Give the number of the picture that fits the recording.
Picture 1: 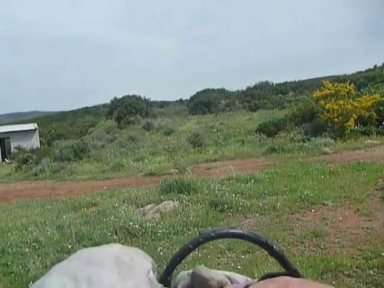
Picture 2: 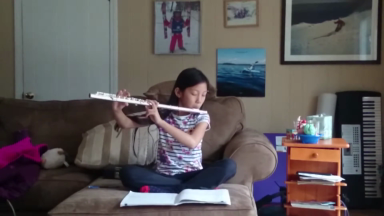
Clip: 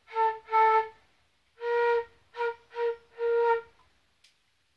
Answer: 2